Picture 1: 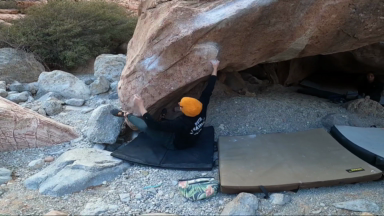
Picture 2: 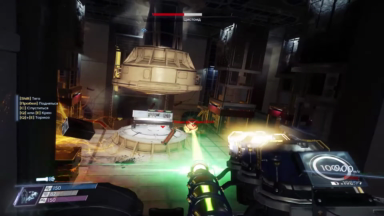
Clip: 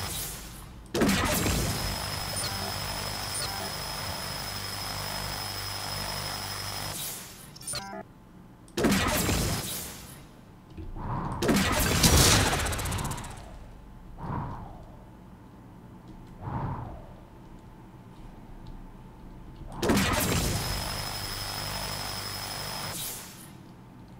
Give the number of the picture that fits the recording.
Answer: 2